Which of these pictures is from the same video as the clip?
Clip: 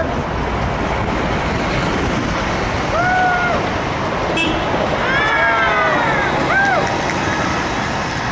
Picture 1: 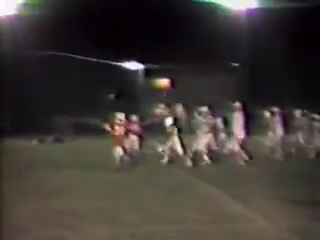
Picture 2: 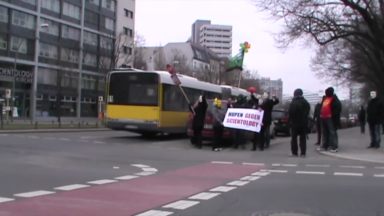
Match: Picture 2